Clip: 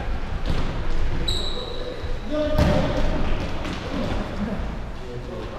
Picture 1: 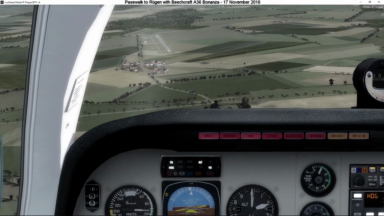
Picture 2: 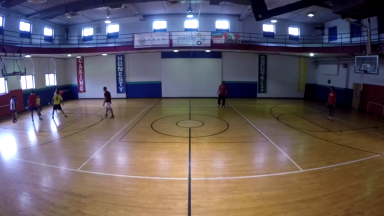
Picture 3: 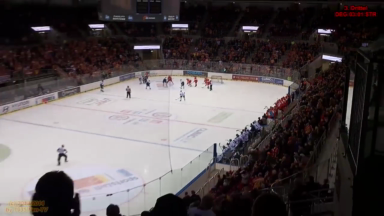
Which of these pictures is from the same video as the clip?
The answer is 2